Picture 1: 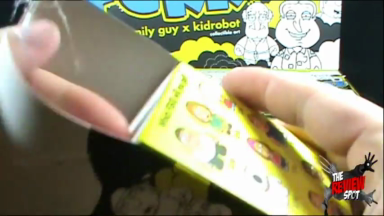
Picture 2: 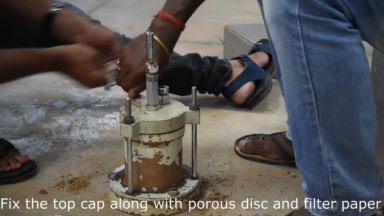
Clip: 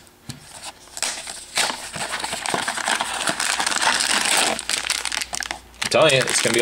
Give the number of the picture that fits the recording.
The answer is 1